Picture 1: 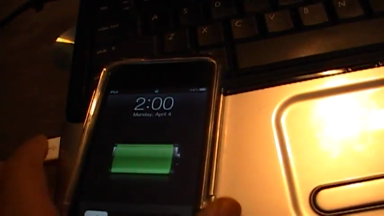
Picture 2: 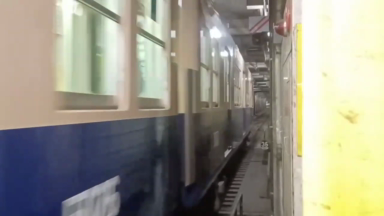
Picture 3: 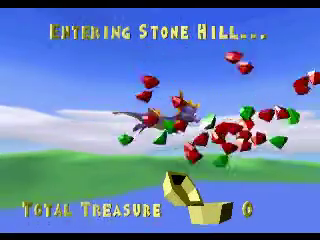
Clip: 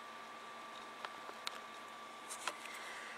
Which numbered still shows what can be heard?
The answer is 1